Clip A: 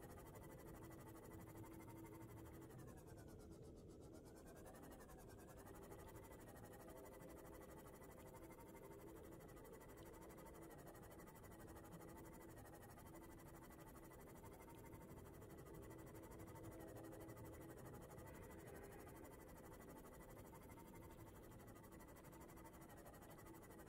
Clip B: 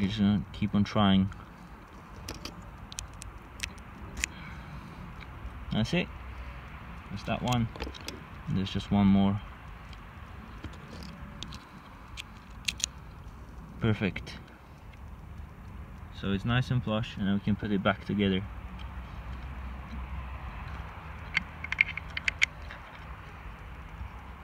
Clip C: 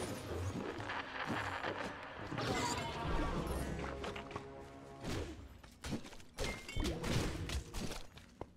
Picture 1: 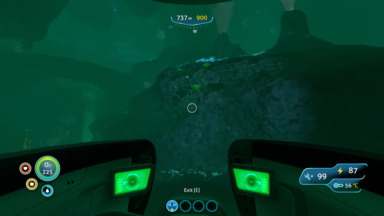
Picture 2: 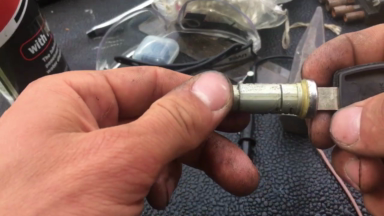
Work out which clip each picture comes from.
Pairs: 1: A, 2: B